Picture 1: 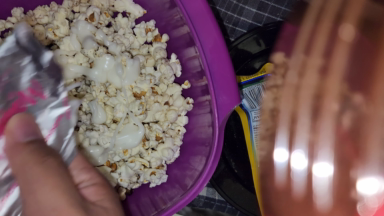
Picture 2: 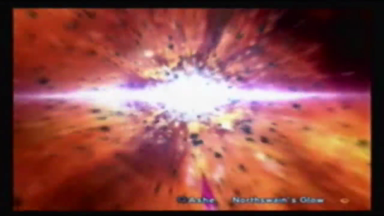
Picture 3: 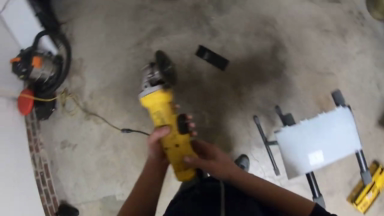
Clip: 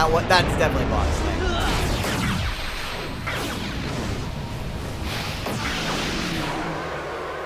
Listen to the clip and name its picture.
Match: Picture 2